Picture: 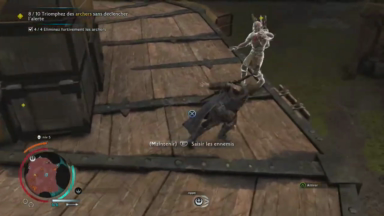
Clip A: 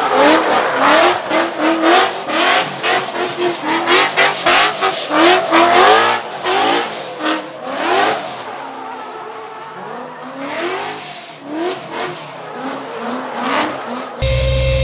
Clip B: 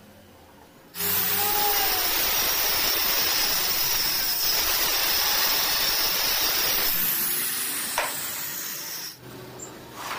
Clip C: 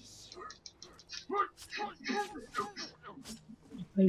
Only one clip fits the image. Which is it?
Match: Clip C